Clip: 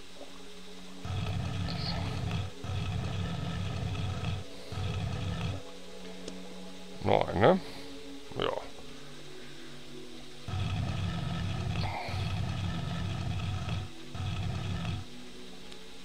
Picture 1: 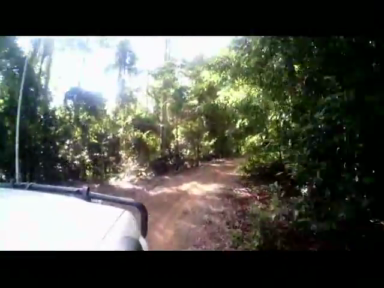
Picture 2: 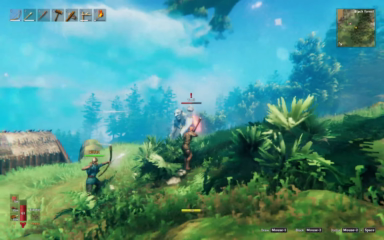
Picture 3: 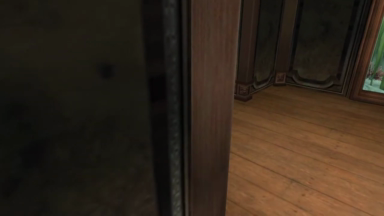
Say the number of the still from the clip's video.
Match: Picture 3